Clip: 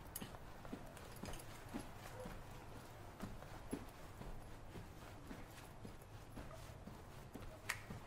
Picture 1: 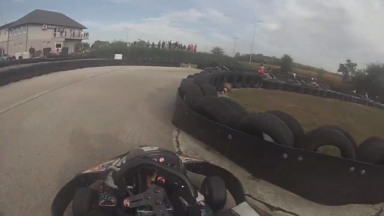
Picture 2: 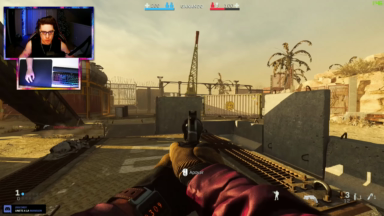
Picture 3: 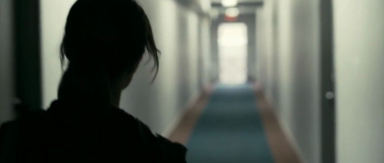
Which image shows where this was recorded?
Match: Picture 3